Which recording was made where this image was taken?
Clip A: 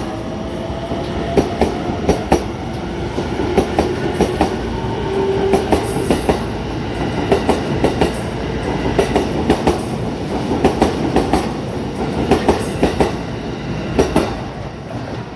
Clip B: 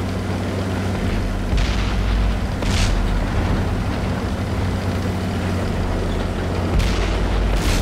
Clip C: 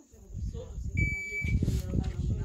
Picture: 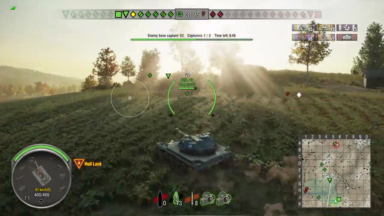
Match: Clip B